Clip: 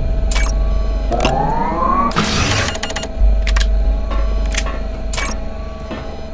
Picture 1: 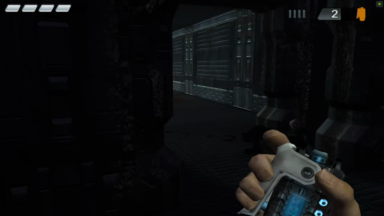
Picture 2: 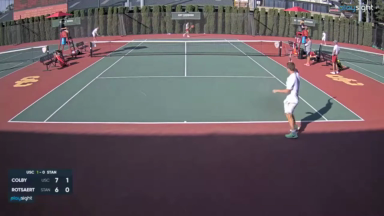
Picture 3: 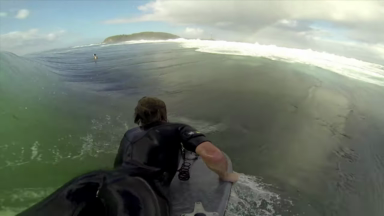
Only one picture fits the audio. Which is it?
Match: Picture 1